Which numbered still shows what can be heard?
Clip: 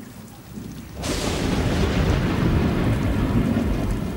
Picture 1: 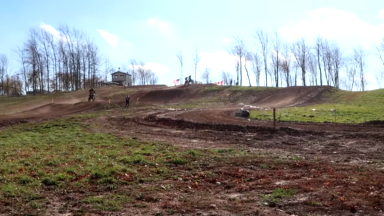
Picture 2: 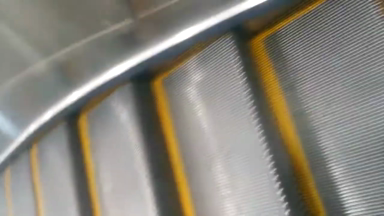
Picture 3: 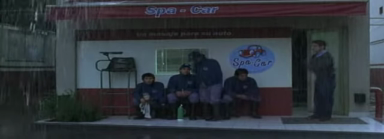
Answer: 3